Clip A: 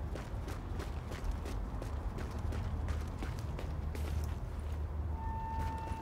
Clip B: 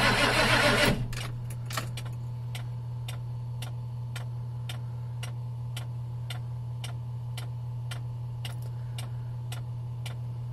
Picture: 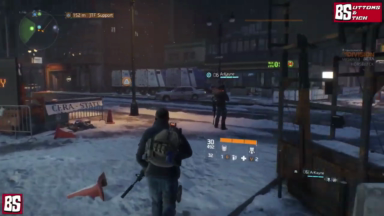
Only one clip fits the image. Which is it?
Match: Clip A